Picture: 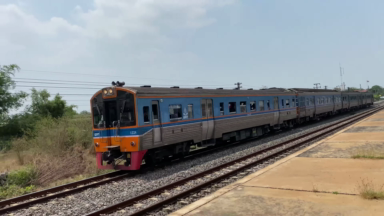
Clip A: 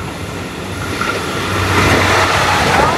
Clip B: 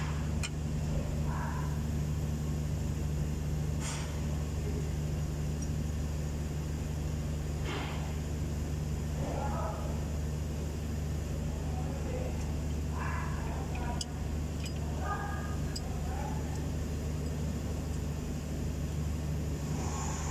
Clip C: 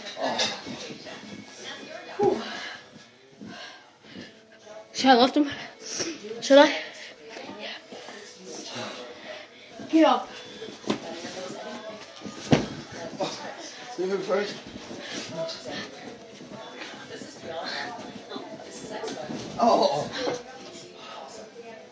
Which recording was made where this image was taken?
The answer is A